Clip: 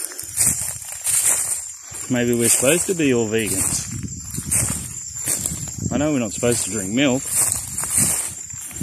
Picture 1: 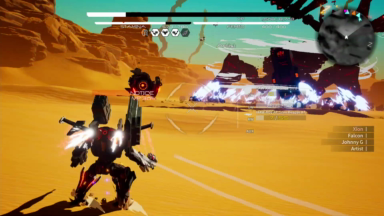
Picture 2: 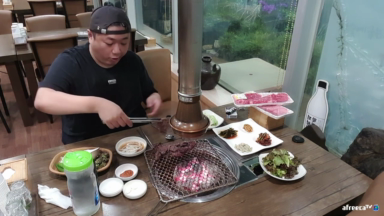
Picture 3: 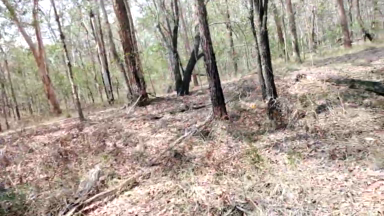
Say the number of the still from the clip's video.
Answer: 3